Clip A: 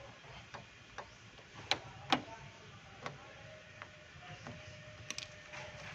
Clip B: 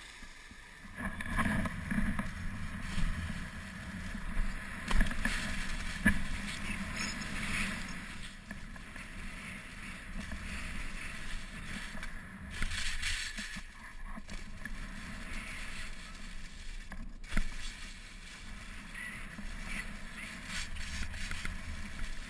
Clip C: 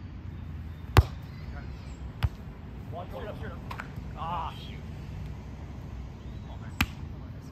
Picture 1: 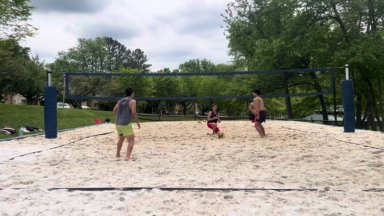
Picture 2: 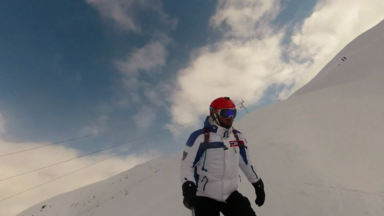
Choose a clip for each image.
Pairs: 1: C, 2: B